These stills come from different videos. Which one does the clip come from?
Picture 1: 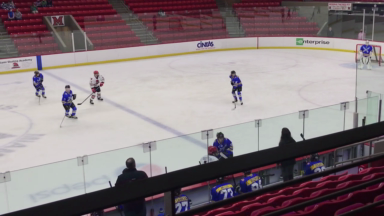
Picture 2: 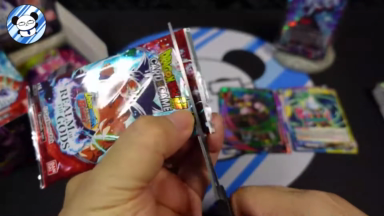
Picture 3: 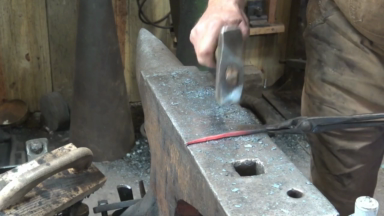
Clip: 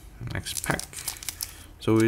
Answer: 2